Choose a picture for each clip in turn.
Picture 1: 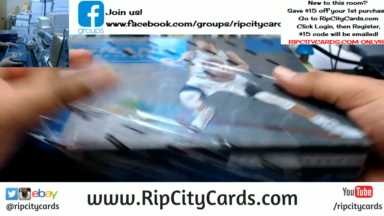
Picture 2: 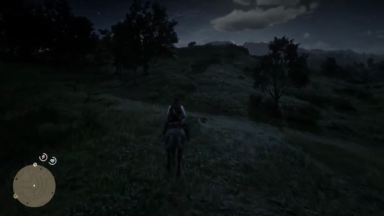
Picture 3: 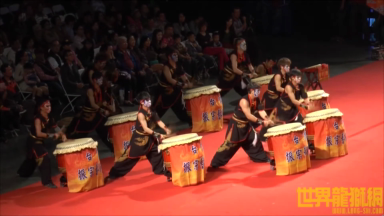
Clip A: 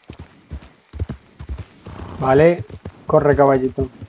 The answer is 2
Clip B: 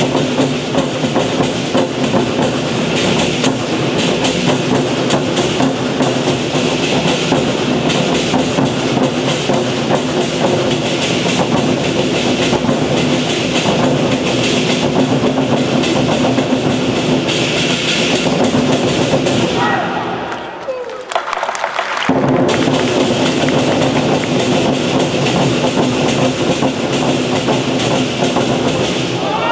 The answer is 3